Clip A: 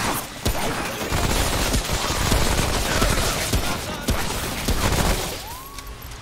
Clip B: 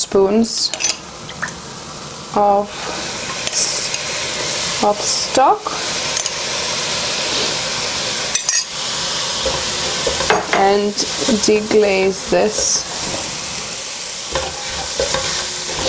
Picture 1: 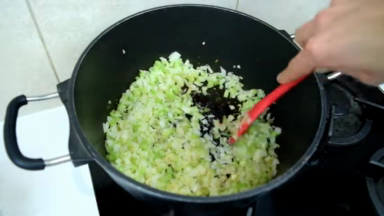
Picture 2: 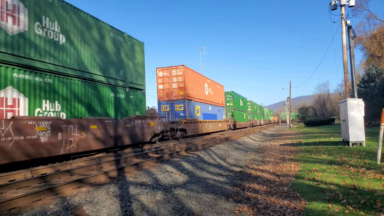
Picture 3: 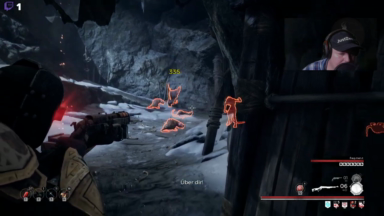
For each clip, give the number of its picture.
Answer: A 3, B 1